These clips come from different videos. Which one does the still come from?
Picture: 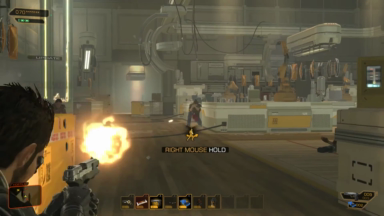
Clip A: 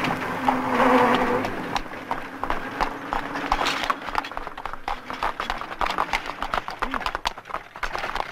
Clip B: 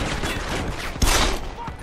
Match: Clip B